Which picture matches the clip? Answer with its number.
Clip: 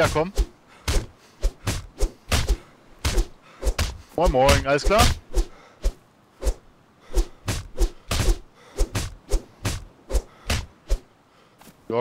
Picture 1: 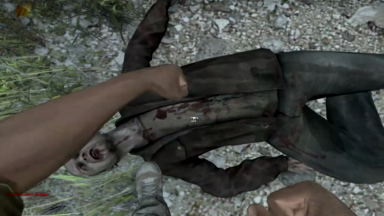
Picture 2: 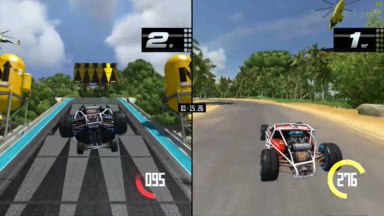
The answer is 1